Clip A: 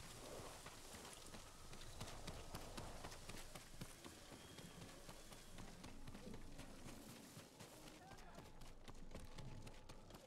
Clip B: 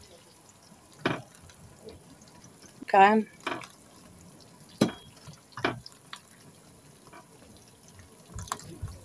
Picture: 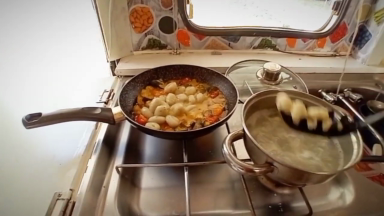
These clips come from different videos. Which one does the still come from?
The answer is B